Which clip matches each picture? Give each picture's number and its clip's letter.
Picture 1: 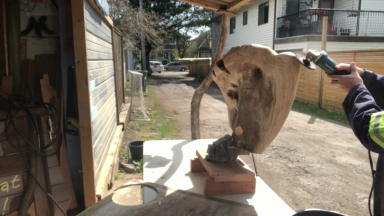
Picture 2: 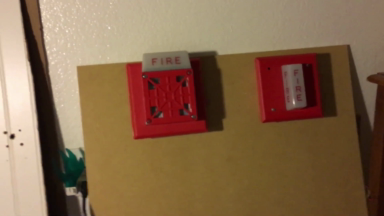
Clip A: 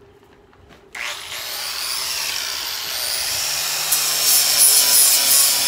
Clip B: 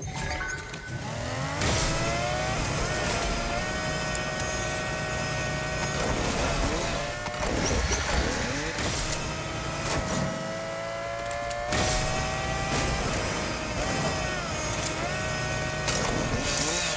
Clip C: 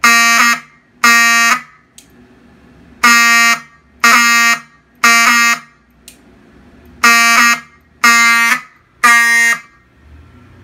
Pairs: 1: A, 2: C